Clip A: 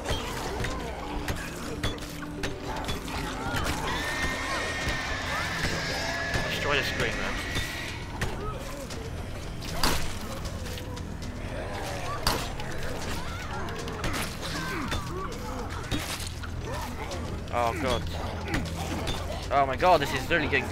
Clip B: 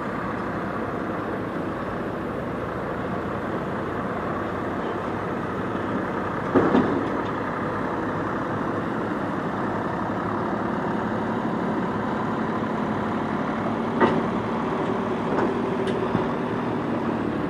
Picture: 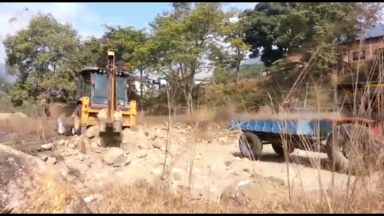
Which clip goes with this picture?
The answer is B